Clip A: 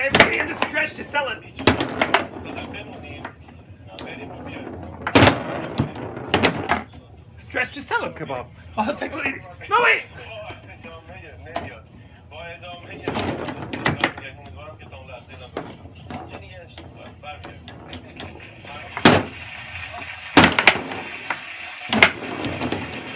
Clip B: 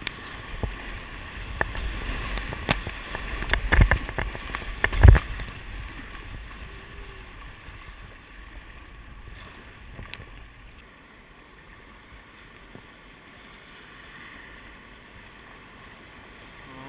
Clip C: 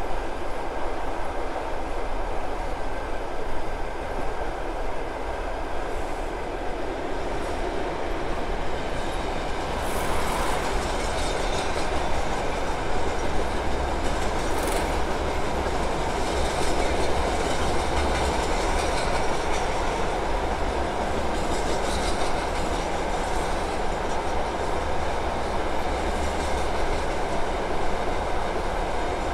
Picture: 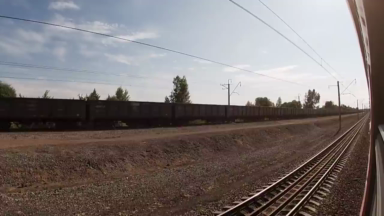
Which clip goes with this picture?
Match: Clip C